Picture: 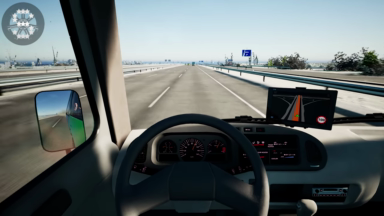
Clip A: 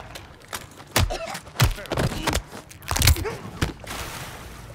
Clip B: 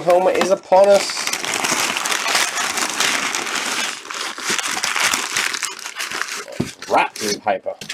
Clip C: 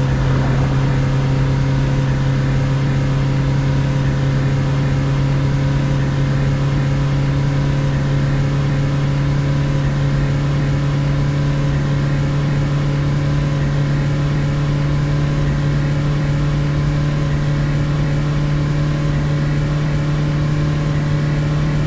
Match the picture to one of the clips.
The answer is C